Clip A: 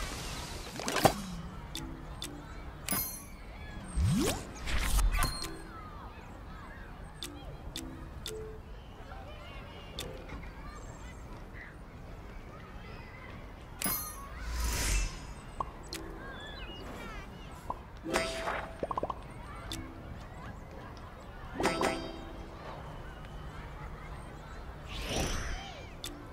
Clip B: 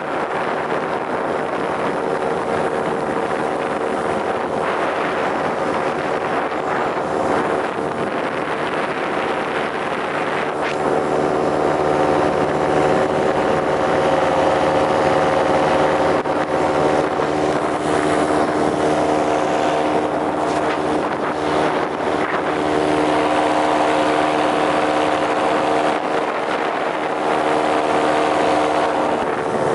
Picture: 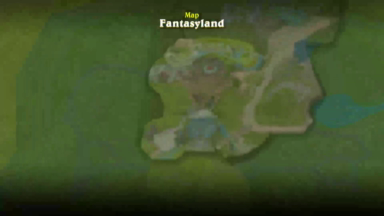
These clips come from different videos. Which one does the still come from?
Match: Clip A